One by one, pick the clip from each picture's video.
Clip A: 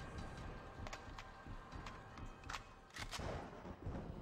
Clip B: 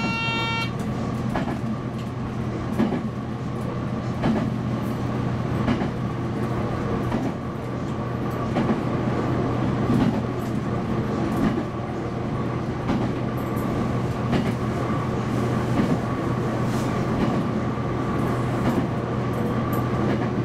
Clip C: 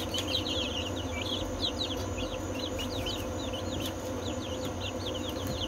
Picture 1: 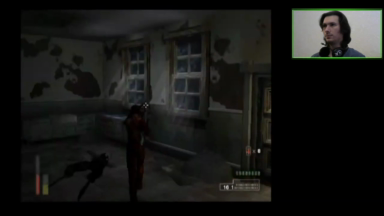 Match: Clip A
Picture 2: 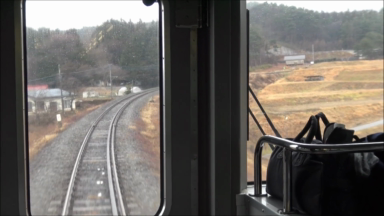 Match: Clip B